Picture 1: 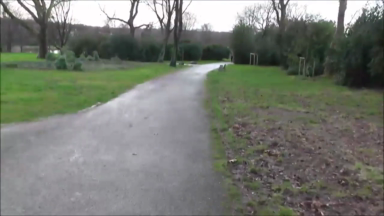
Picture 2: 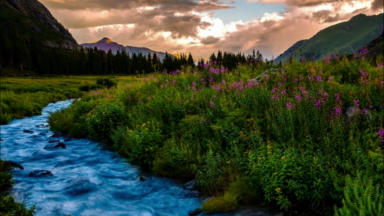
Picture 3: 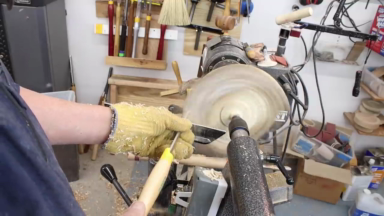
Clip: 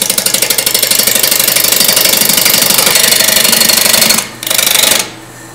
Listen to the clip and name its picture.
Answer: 3